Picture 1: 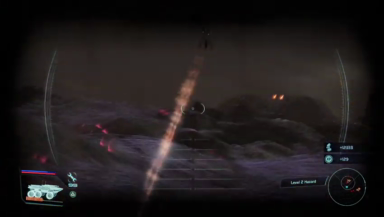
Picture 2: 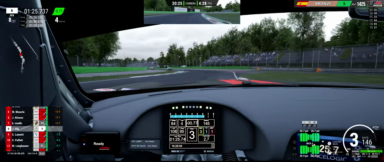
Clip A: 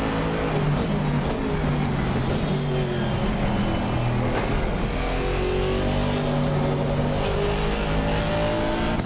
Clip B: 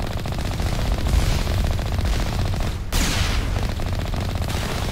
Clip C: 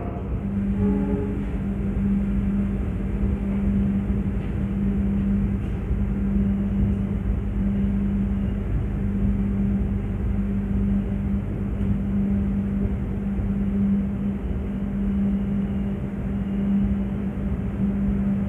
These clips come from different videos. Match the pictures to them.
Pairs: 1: B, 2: A